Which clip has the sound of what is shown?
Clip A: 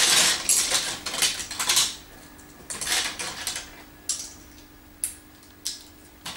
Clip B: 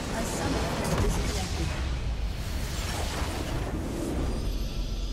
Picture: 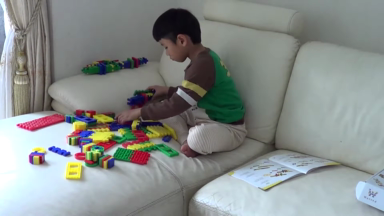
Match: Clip A